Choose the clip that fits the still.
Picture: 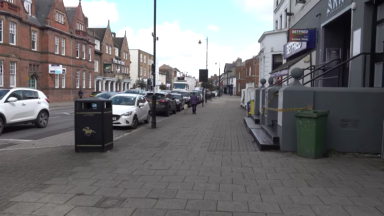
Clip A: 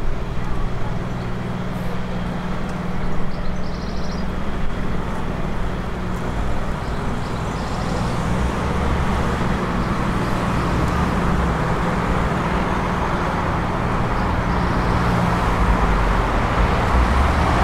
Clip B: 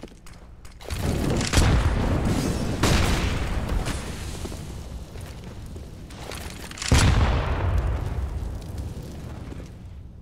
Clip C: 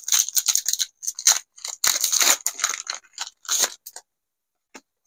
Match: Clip A